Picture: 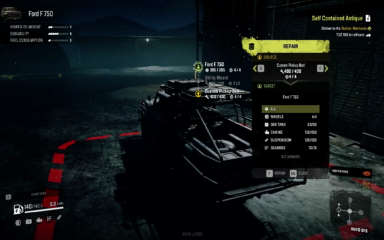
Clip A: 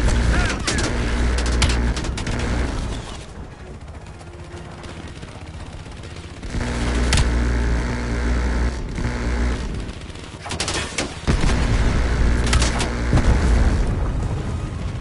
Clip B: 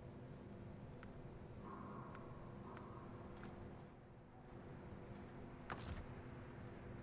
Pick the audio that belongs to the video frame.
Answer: B